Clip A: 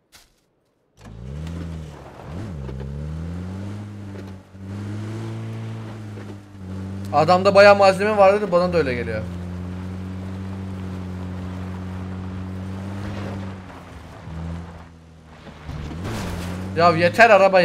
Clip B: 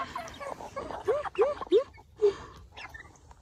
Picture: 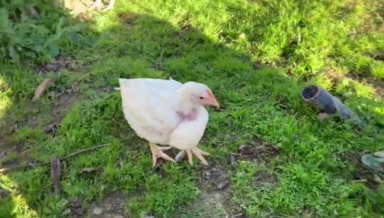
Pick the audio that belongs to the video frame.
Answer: B